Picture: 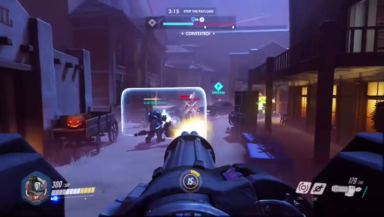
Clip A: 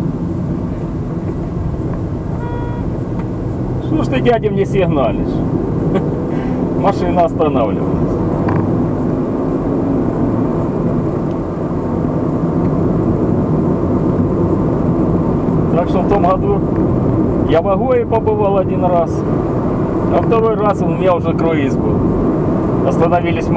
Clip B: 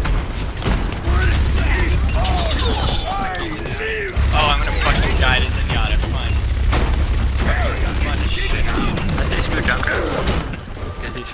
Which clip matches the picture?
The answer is B